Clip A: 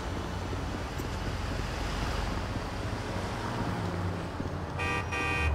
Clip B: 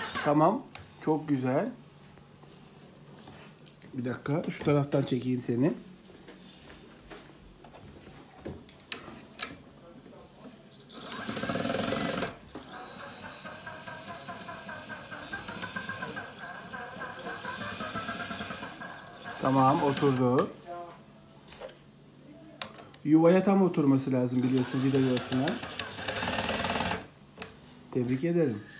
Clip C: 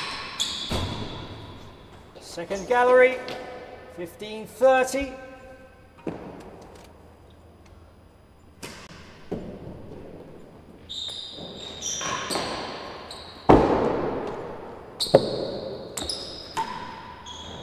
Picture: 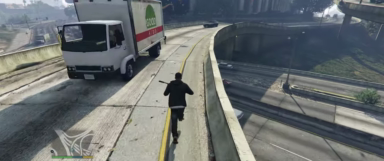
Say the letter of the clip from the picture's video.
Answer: A